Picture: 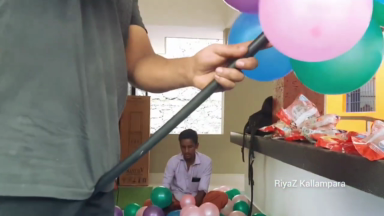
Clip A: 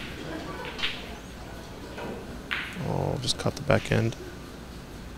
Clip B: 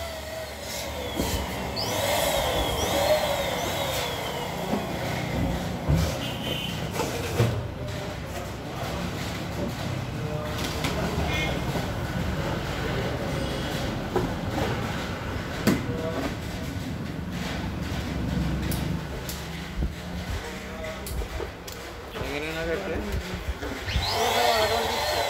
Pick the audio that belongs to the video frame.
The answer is B